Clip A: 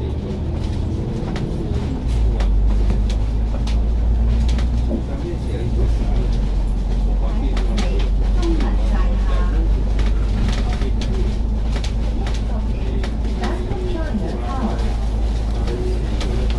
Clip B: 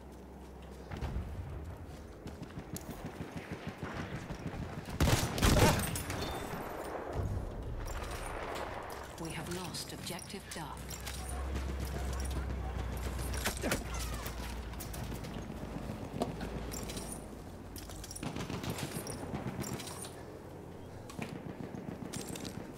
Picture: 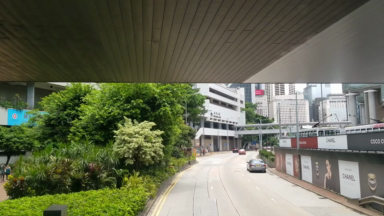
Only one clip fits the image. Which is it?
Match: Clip A